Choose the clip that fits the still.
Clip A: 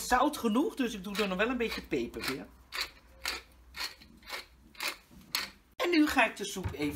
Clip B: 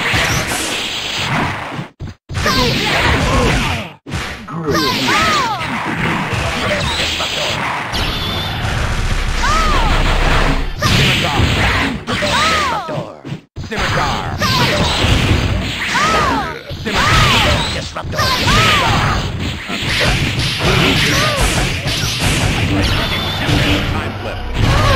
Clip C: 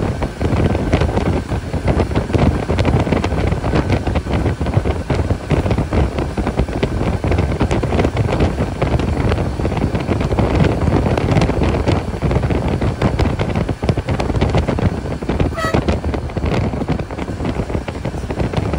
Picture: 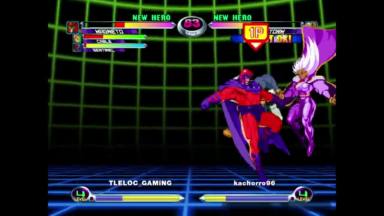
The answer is B